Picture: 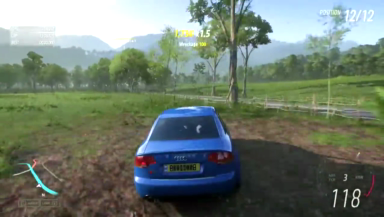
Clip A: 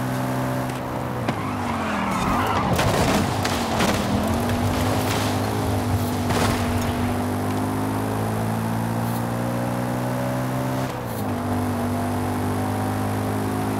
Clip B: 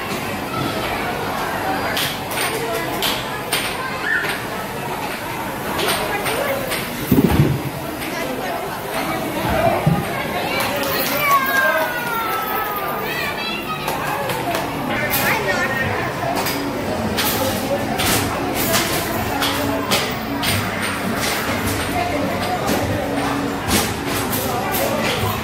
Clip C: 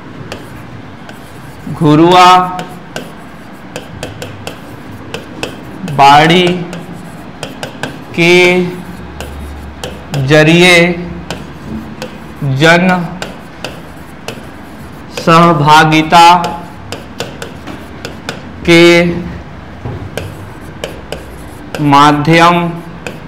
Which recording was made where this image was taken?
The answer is A